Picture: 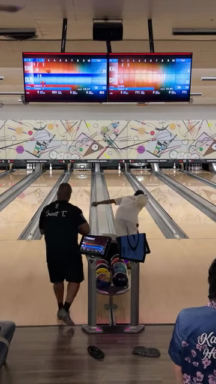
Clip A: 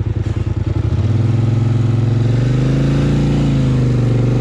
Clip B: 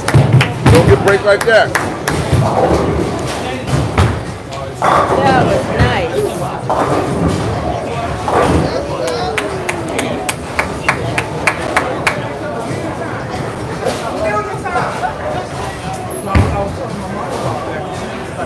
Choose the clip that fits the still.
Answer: B